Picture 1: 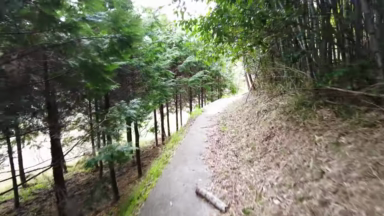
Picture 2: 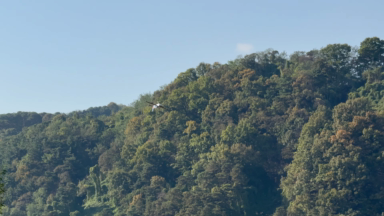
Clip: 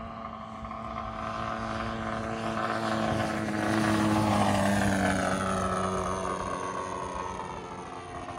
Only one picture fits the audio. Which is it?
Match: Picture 2